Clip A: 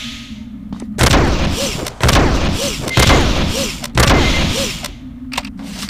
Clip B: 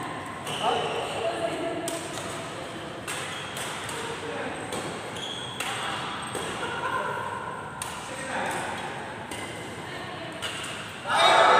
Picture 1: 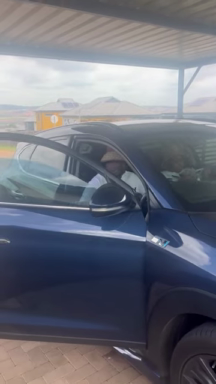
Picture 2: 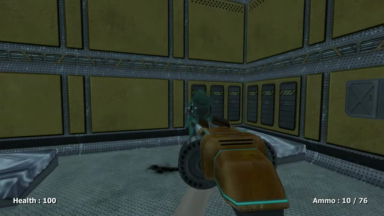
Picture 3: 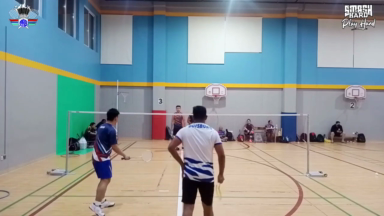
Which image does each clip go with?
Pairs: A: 2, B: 3